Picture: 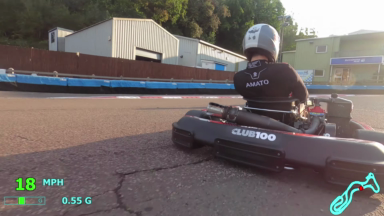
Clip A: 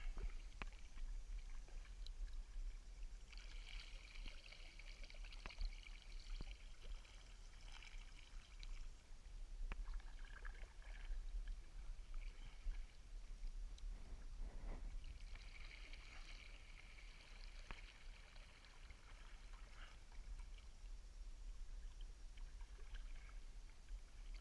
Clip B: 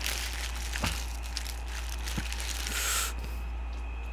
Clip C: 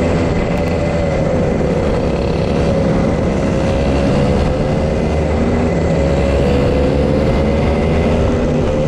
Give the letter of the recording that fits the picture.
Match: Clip C